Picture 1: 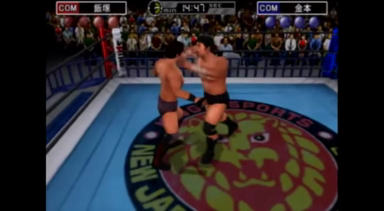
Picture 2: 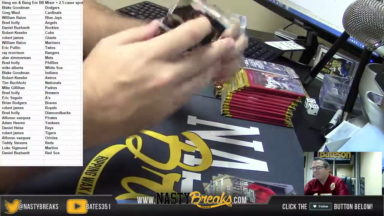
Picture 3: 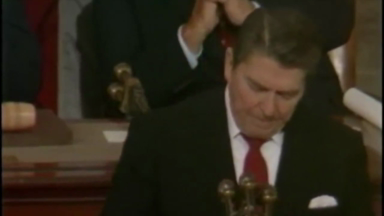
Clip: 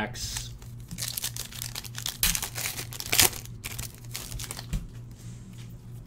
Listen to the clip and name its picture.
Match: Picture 2